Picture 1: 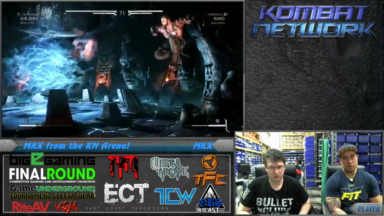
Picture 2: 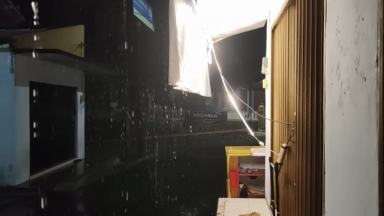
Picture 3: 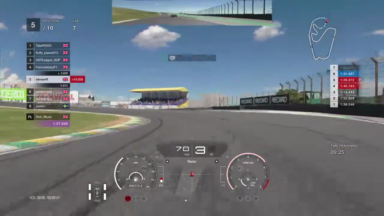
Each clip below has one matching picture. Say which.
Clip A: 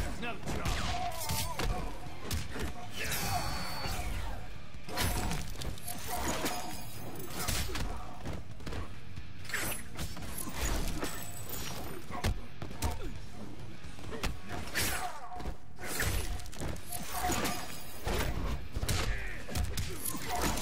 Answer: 1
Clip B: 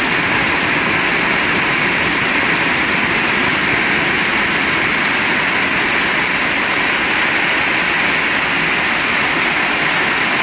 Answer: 2